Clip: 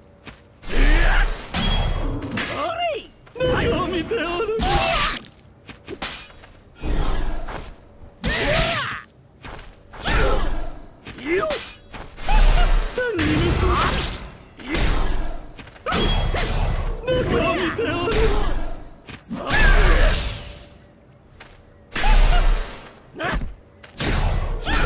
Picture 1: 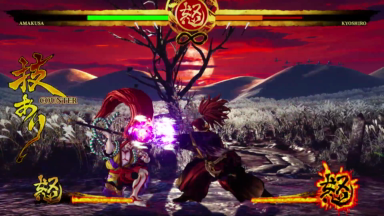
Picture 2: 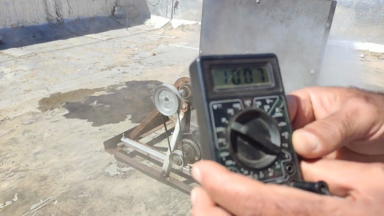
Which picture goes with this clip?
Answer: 1